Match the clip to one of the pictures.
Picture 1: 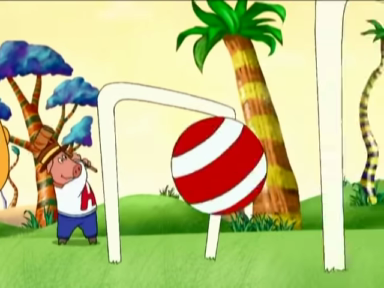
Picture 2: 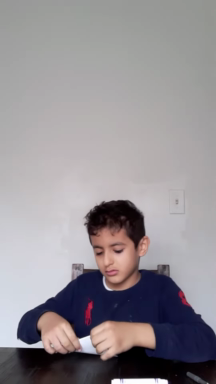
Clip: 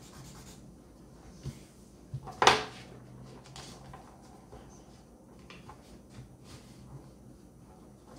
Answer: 2